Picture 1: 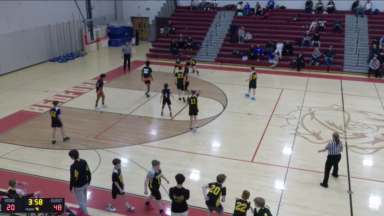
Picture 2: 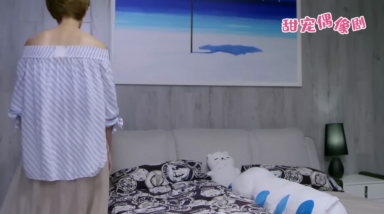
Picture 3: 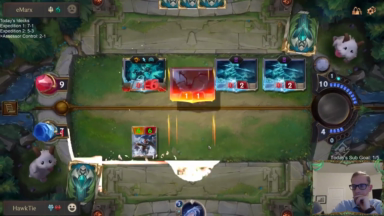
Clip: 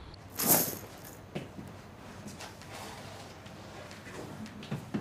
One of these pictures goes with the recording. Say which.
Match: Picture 2